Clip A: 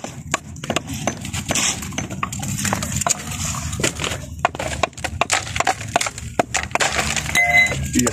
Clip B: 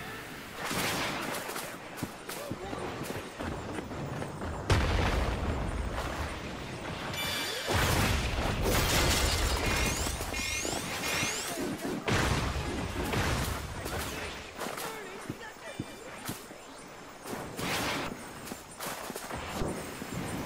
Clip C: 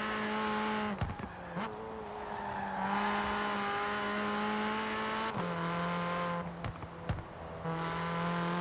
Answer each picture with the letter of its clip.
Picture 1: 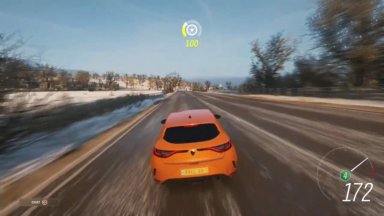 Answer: C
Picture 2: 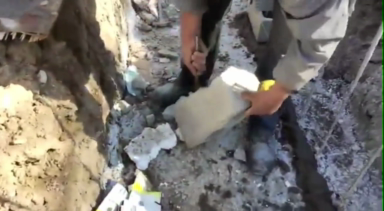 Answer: A